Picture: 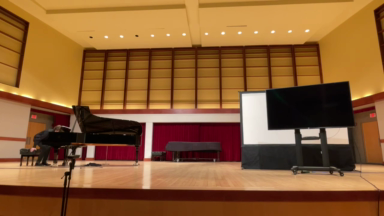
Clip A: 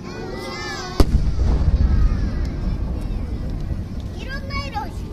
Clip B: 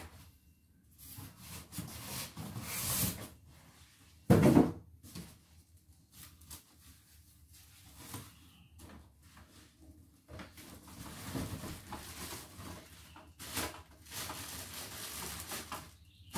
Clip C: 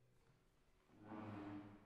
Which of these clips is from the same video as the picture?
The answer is C